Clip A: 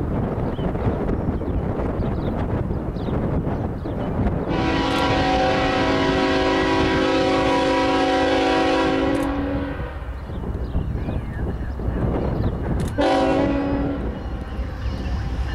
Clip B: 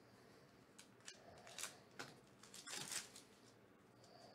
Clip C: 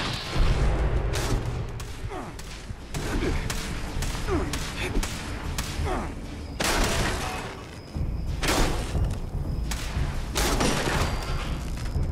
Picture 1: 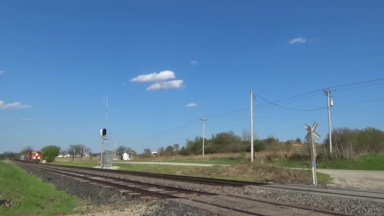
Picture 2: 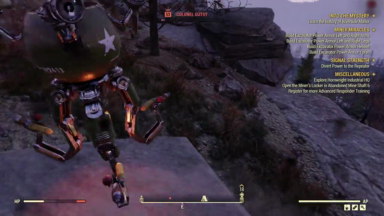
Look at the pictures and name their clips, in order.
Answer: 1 A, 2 C